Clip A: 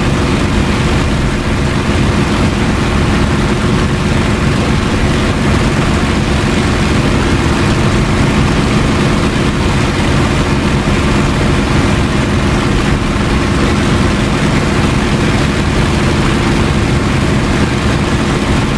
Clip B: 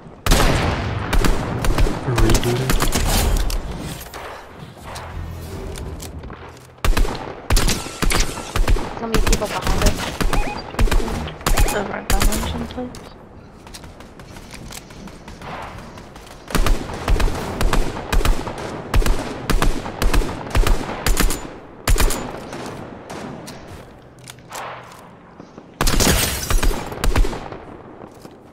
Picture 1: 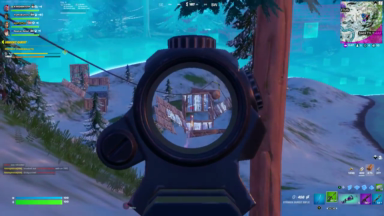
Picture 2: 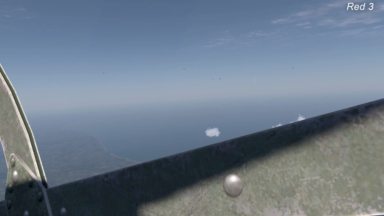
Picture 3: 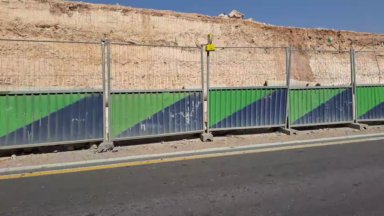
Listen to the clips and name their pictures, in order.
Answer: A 2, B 1